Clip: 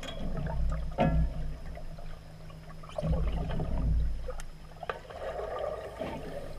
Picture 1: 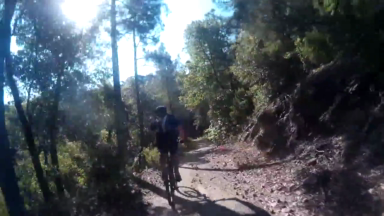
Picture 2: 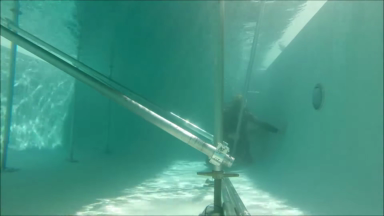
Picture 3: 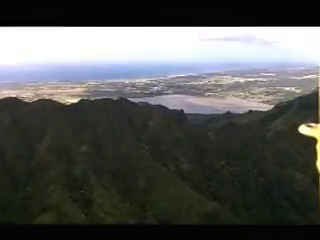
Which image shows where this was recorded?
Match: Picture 2